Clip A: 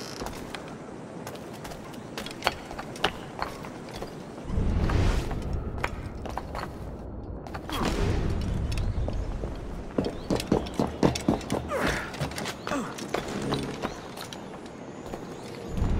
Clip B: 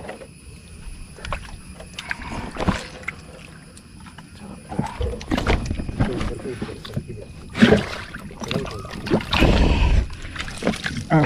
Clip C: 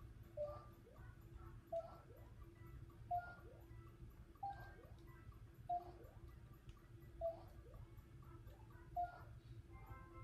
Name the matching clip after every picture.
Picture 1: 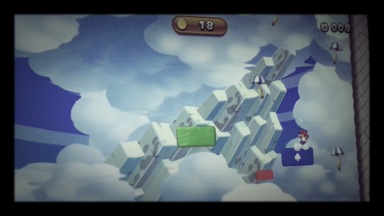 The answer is C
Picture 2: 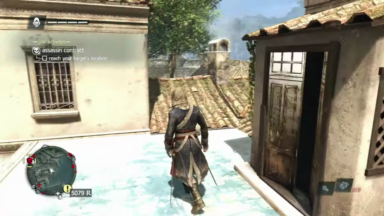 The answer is A